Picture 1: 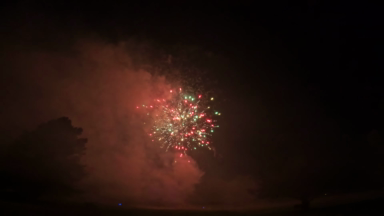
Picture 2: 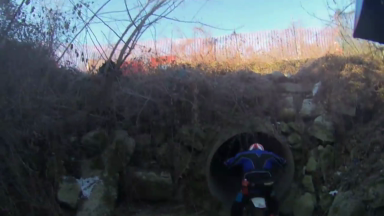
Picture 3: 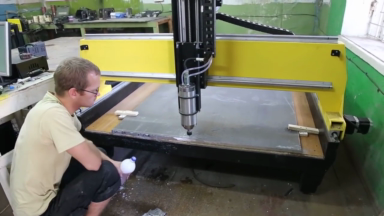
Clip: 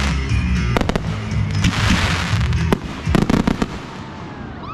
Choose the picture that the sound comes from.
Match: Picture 1